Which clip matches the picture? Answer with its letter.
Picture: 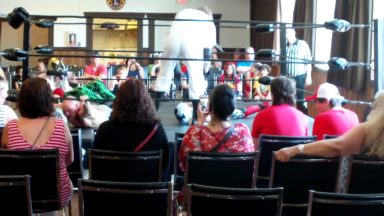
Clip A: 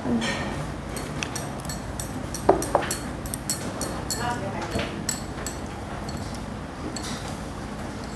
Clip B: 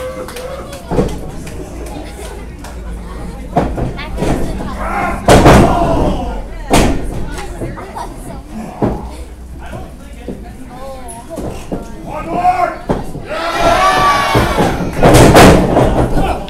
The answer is B